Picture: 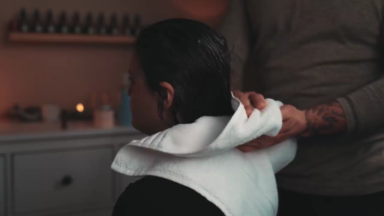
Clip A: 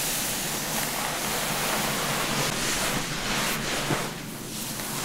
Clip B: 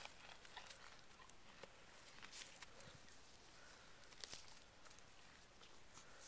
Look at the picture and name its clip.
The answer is A